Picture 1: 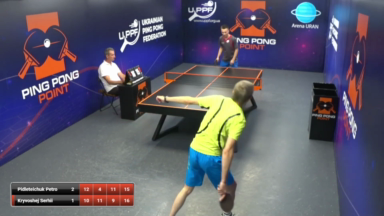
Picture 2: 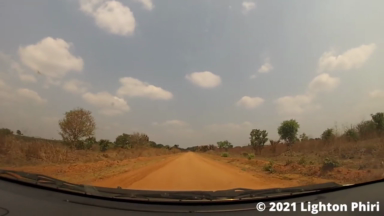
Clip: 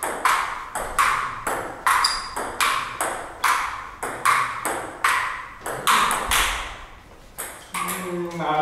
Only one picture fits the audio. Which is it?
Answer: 1